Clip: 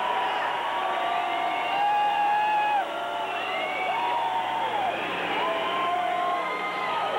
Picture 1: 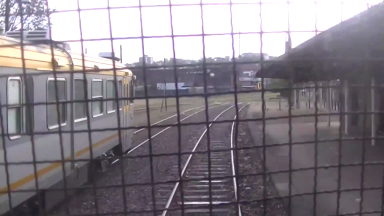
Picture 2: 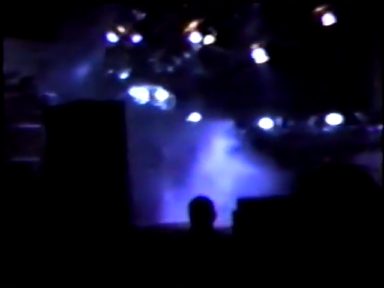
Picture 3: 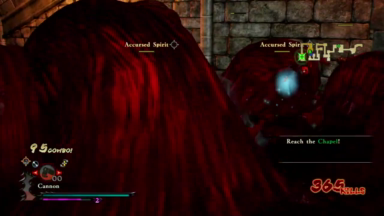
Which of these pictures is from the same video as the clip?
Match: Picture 2